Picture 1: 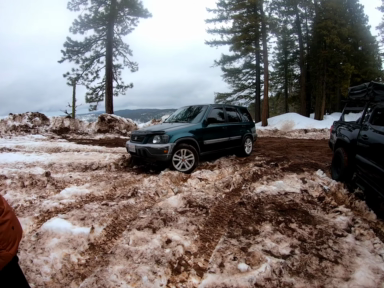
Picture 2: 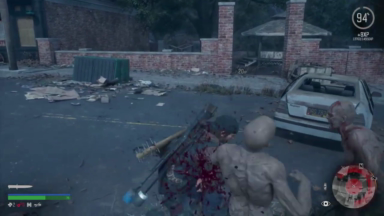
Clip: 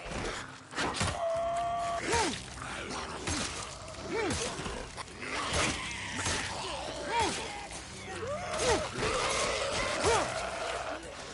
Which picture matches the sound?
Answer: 2